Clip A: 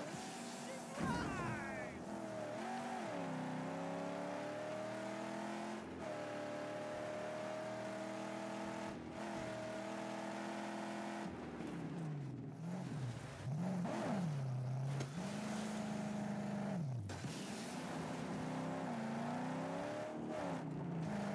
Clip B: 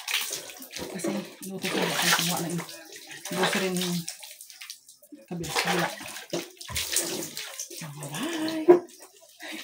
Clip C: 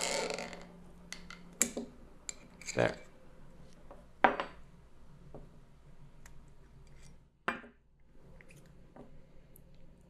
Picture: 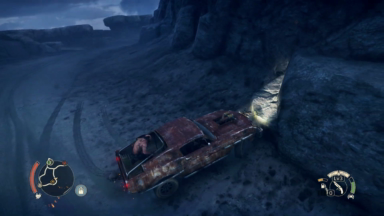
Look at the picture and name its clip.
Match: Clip A